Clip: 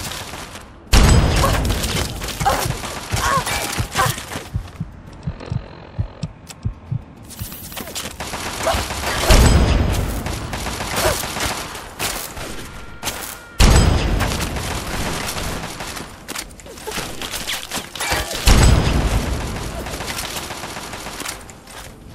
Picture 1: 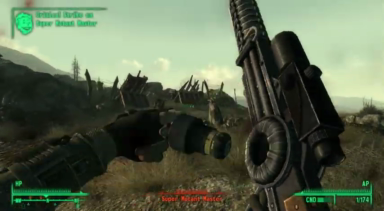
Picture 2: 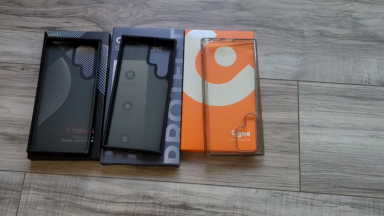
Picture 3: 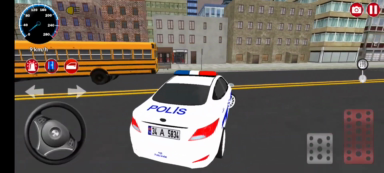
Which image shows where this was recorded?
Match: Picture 1